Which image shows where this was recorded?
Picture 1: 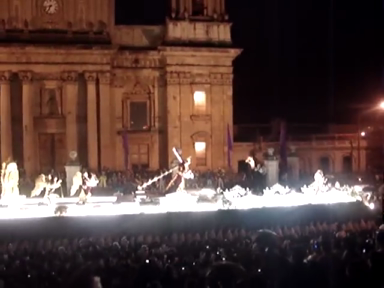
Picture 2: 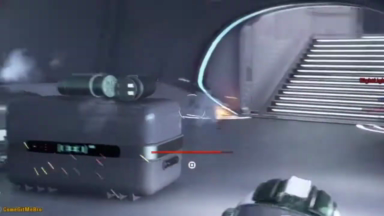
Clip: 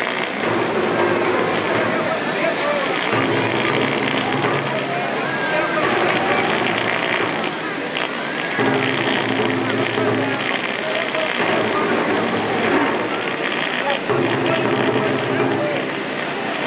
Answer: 1